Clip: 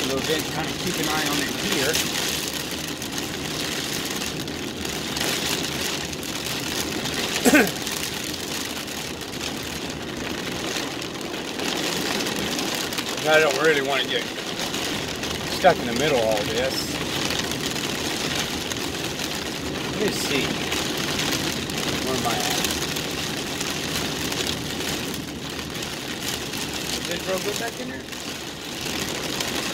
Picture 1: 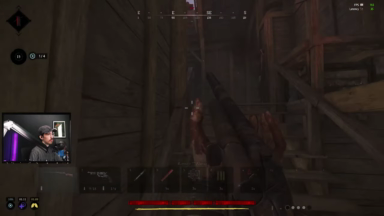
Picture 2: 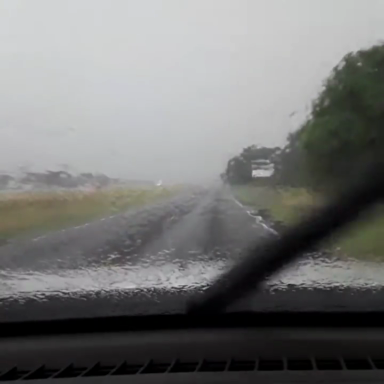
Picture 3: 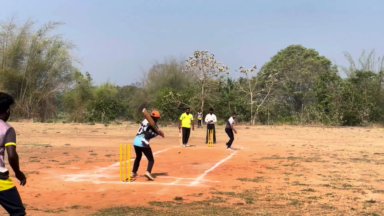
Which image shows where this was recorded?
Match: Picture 2